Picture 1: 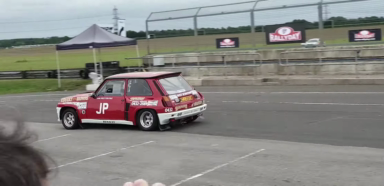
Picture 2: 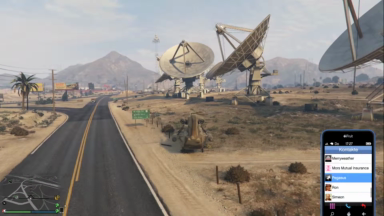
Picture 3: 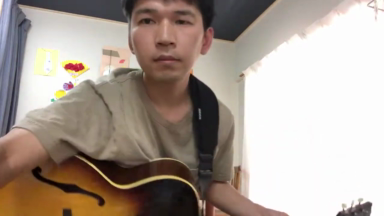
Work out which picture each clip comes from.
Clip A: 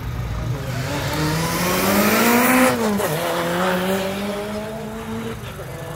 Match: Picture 1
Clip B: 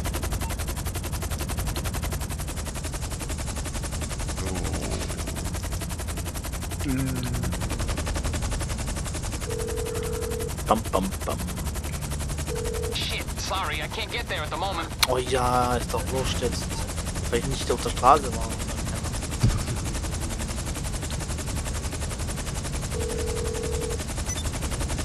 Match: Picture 2